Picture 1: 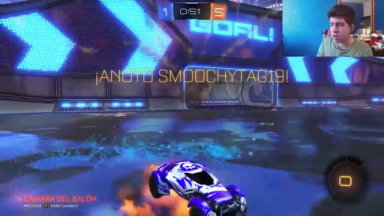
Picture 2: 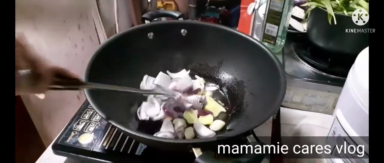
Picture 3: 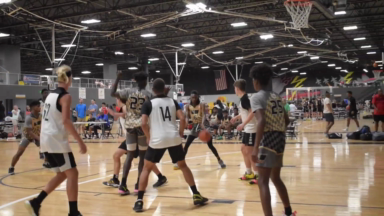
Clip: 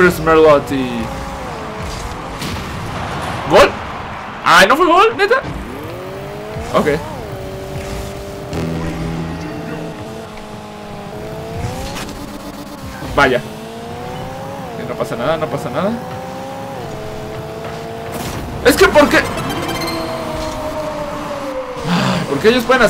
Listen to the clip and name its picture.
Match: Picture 1